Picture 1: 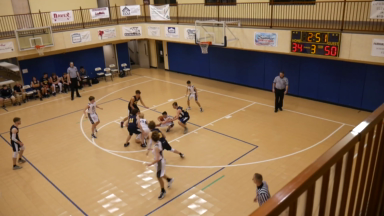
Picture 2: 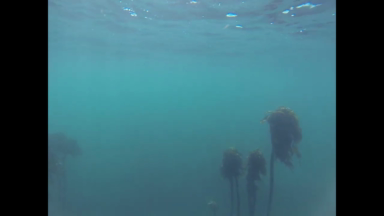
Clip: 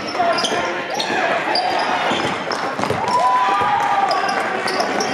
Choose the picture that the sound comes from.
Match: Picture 1